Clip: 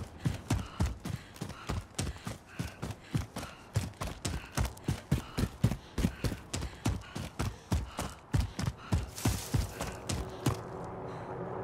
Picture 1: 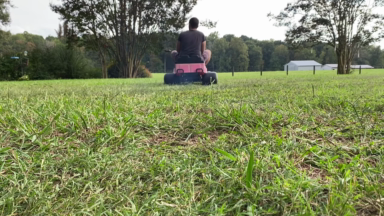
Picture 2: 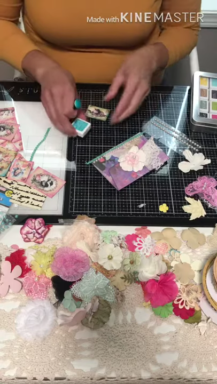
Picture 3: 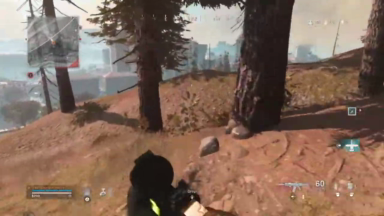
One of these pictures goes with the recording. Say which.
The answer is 3